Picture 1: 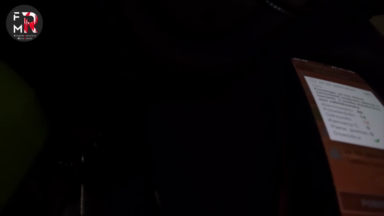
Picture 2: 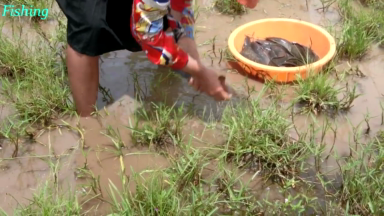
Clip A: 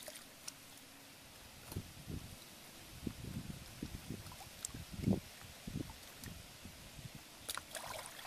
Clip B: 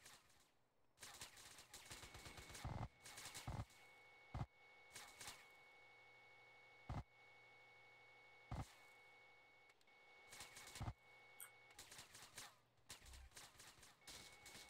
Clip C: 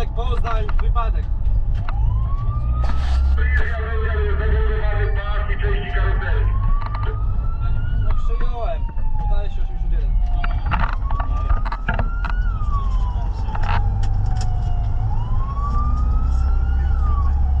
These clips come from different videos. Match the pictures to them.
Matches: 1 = C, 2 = A